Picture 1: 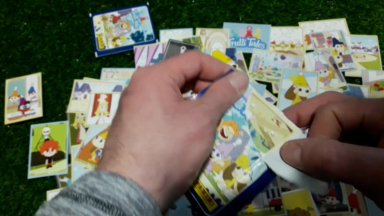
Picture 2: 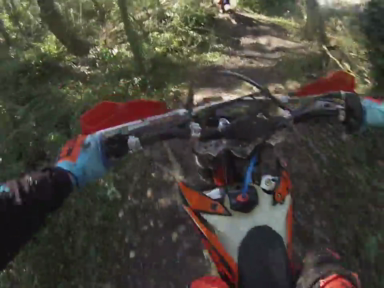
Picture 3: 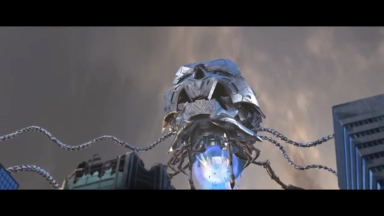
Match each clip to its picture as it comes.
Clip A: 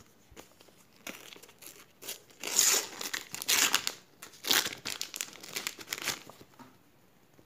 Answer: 1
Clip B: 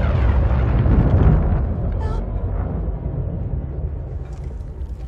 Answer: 3